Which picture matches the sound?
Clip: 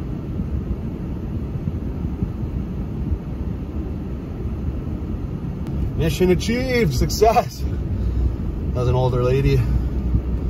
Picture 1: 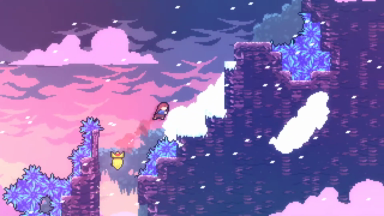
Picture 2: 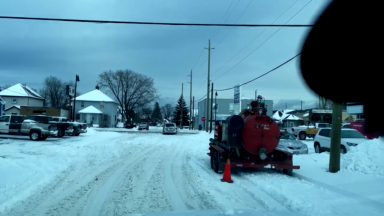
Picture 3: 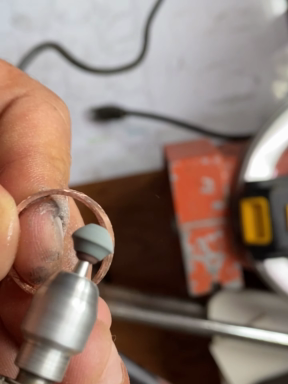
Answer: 2